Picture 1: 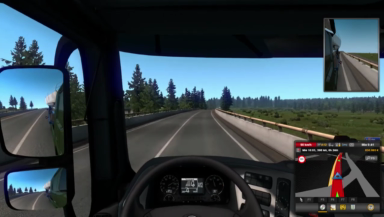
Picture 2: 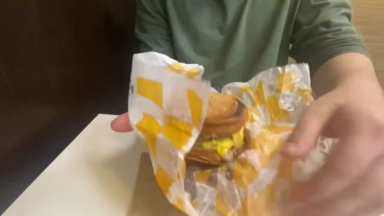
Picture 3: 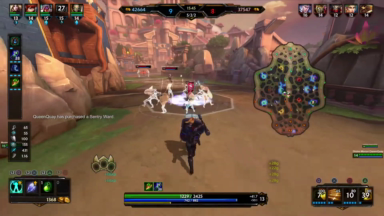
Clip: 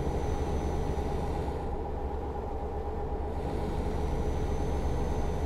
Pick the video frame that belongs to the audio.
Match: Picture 1